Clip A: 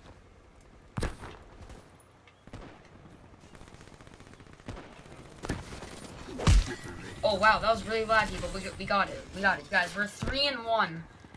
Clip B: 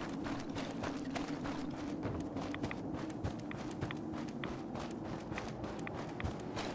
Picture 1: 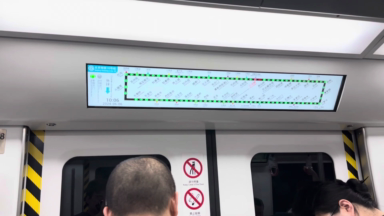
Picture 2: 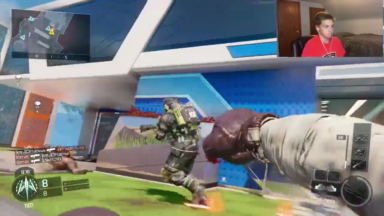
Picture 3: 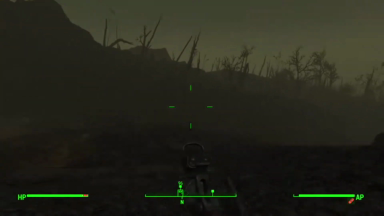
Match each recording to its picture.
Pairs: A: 2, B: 3